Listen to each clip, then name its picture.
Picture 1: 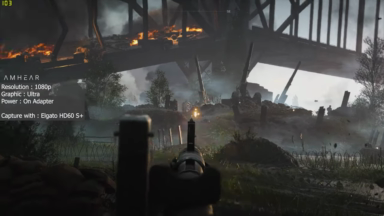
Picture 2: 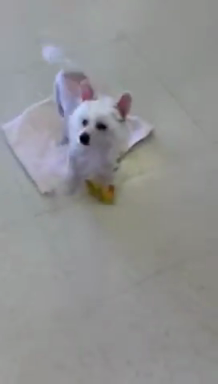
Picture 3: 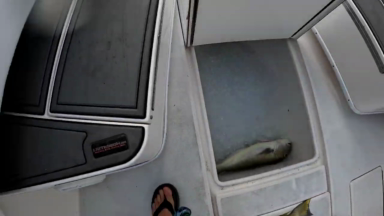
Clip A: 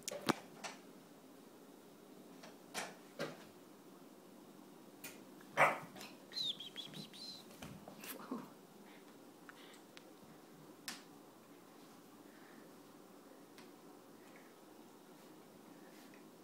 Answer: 2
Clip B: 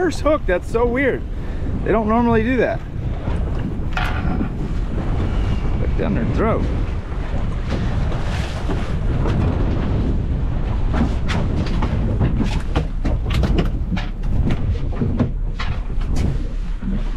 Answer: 3